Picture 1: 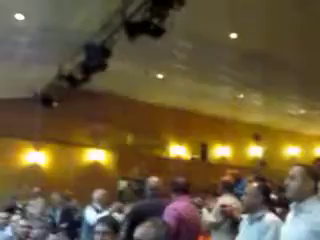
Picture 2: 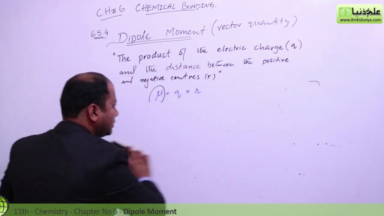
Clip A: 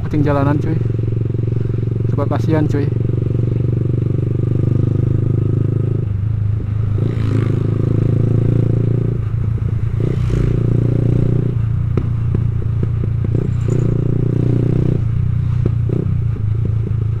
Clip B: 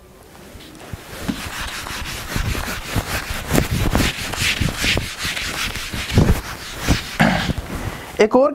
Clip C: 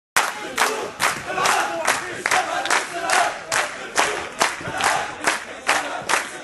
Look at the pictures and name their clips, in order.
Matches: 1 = C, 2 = B